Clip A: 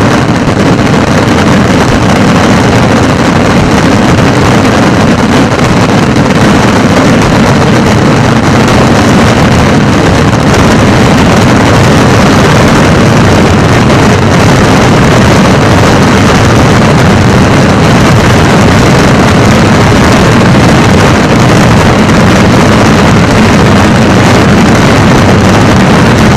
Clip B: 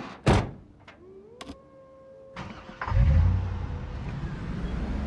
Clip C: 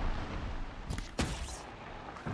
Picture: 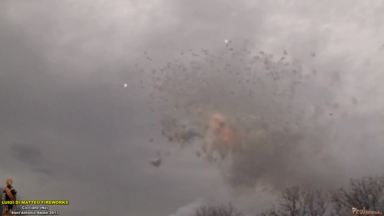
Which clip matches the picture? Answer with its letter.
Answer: A